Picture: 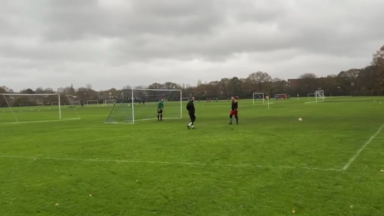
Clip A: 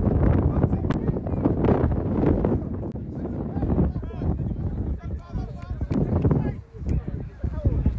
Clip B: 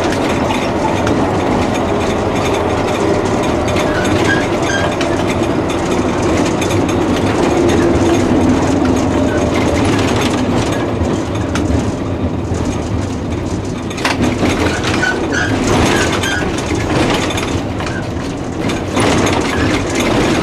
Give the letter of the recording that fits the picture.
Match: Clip A